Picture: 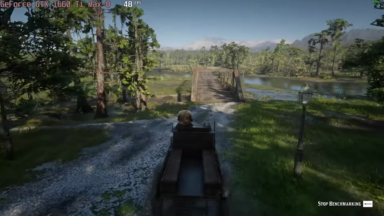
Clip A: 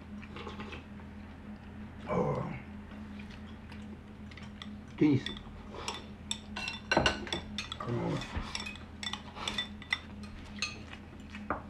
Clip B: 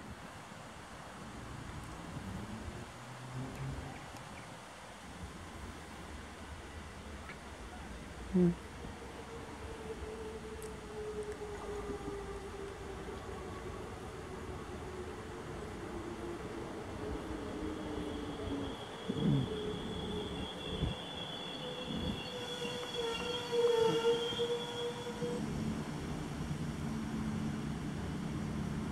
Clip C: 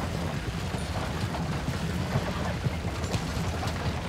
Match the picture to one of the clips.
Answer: C